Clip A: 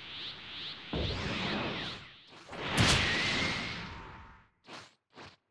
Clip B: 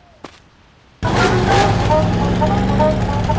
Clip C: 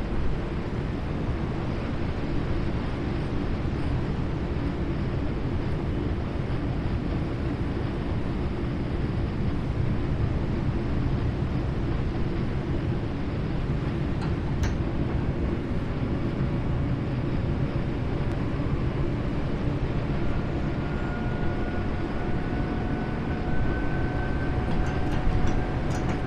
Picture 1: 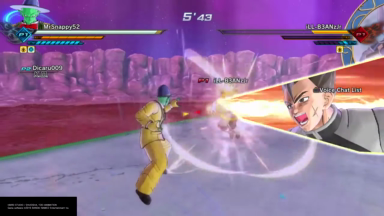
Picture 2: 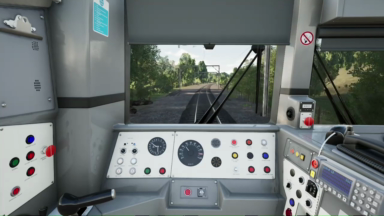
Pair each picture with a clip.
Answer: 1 A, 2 C